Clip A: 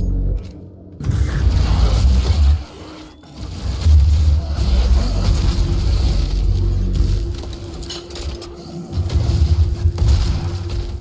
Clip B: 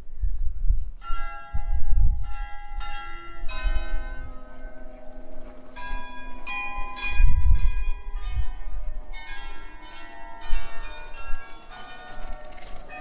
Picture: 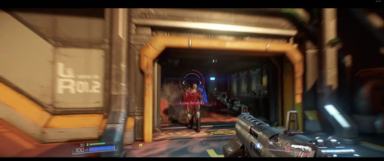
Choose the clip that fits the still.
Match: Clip A